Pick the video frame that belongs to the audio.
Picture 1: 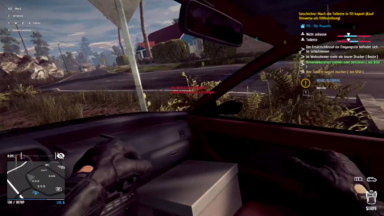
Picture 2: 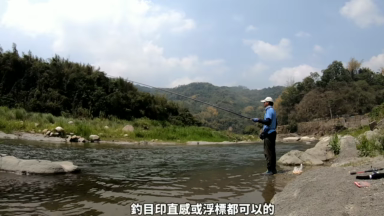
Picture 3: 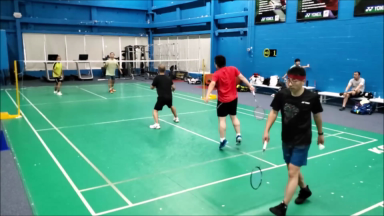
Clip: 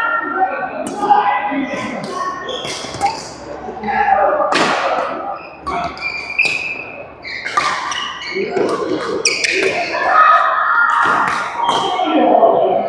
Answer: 3